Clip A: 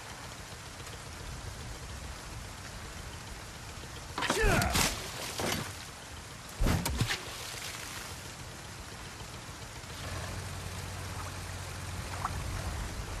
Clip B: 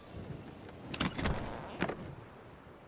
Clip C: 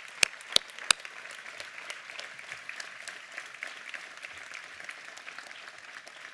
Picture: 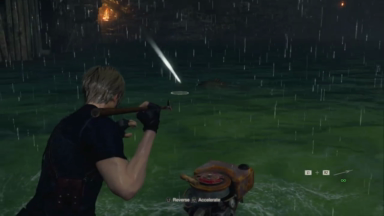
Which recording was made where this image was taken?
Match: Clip A